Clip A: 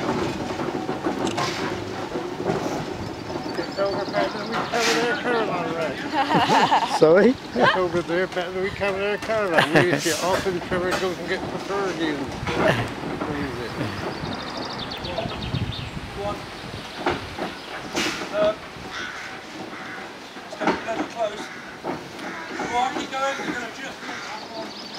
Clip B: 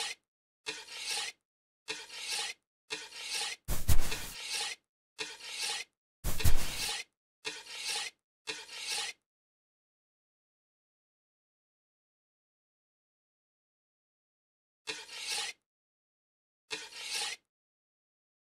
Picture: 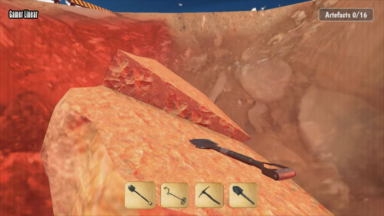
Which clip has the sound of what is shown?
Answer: B